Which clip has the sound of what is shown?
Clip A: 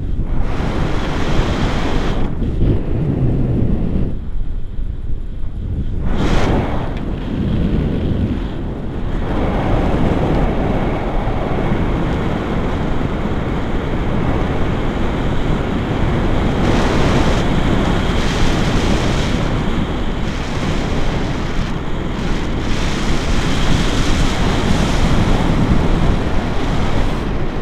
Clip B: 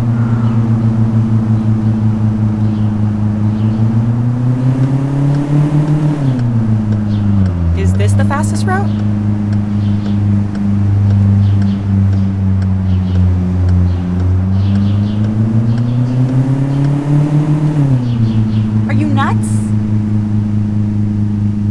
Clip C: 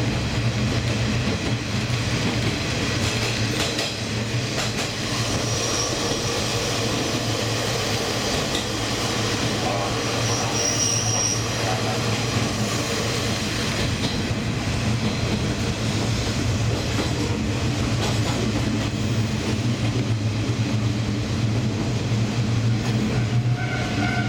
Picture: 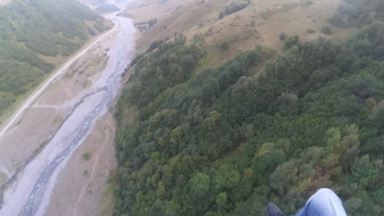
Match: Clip A